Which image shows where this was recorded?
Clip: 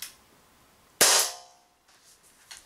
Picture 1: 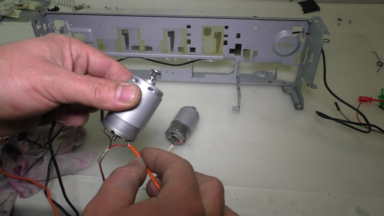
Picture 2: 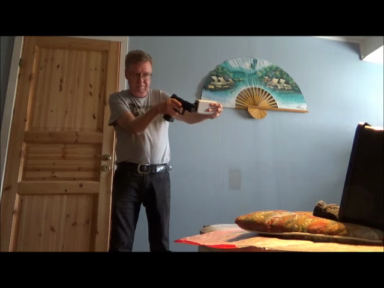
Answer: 2